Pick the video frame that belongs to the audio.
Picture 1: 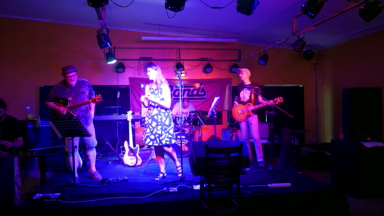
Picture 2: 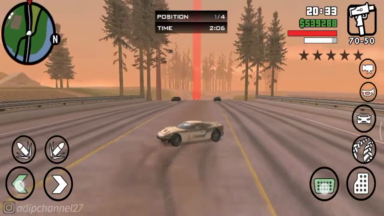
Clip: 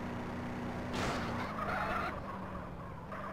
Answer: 2